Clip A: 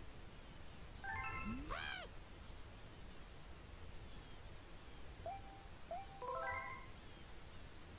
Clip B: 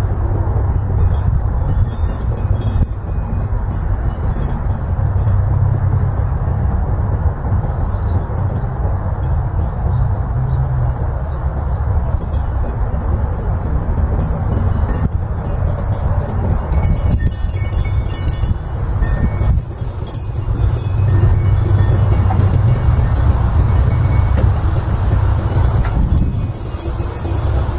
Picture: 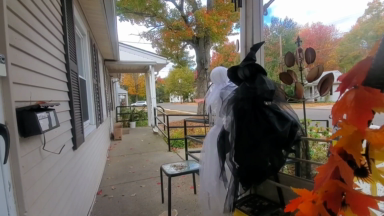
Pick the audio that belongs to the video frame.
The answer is B